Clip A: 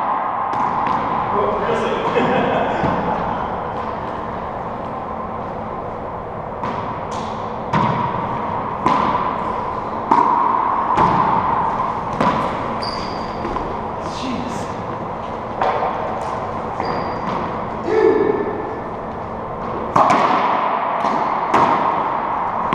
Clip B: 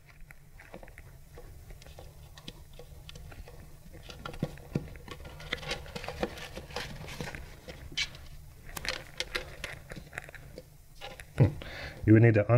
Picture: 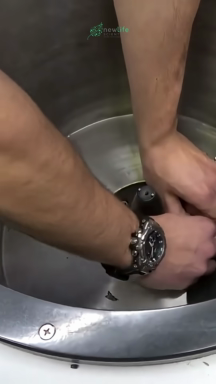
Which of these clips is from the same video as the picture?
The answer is B